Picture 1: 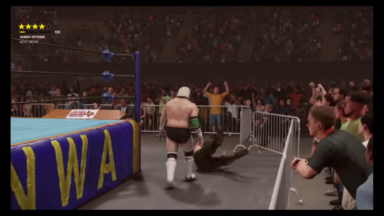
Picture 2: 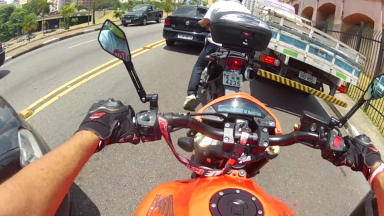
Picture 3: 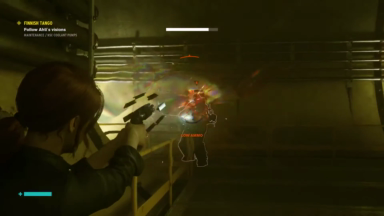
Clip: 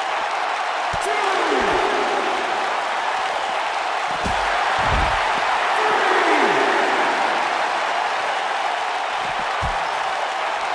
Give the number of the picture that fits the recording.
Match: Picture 1